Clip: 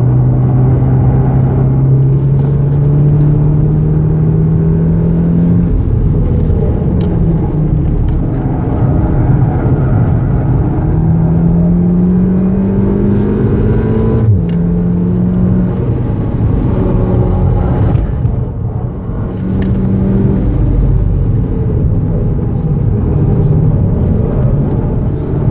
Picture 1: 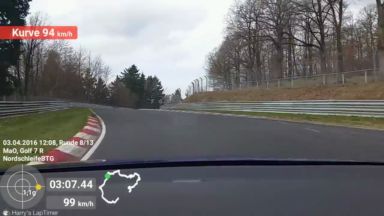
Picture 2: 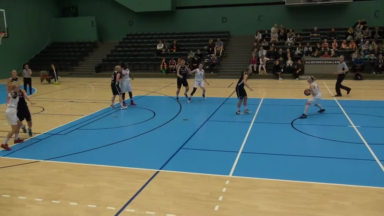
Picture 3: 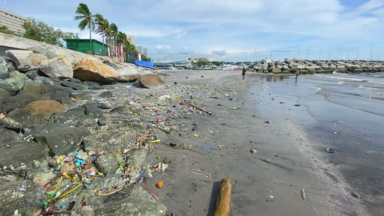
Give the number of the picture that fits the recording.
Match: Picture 1